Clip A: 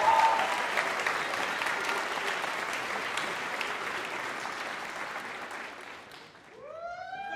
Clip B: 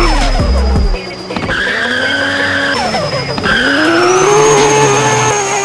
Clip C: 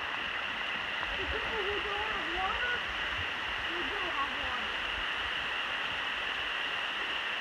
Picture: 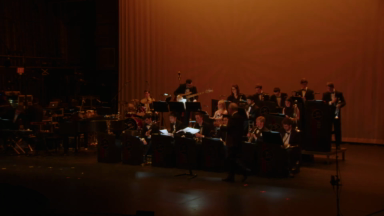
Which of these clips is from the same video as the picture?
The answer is A